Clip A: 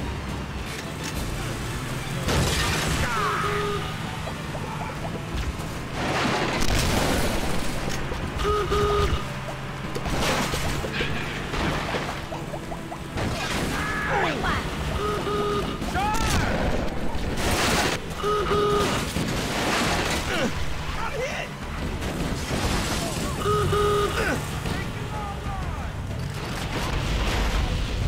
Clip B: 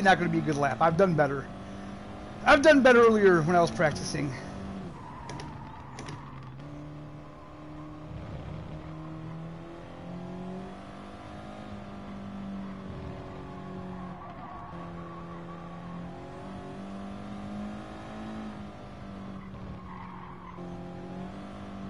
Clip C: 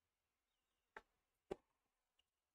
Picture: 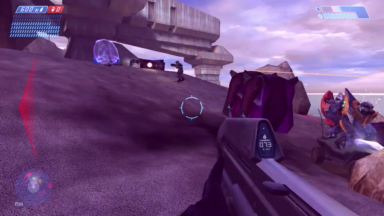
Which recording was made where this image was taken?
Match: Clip A